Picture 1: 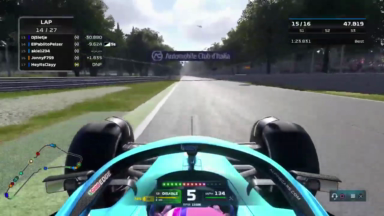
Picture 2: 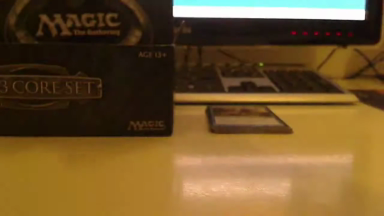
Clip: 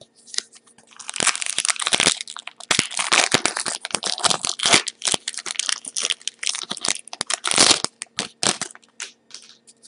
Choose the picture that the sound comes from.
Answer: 2